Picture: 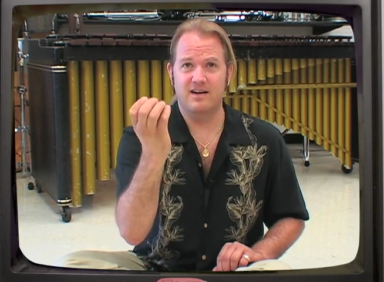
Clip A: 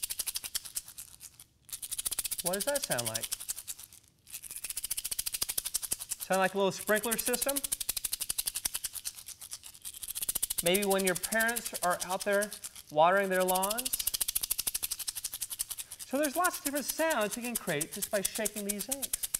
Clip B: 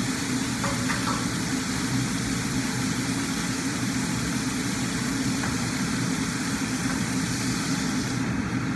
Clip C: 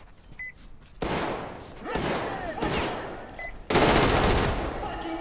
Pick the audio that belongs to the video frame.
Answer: A